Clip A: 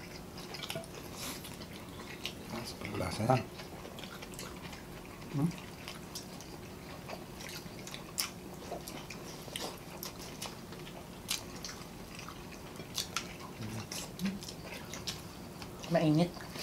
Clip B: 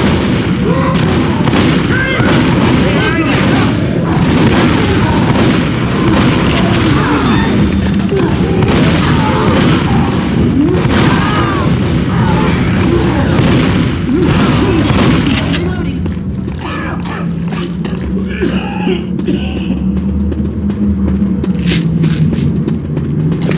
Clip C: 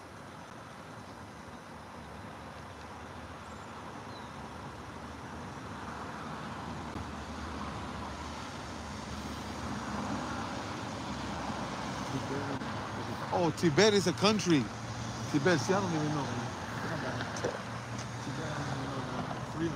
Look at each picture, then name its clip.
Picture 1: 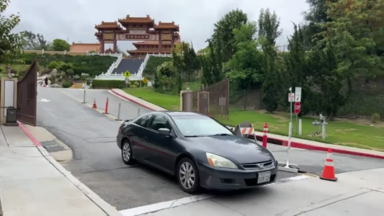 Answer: C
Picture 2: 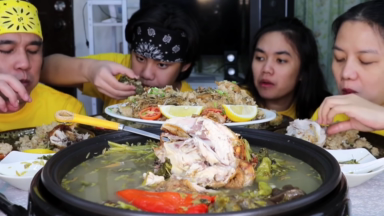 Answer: A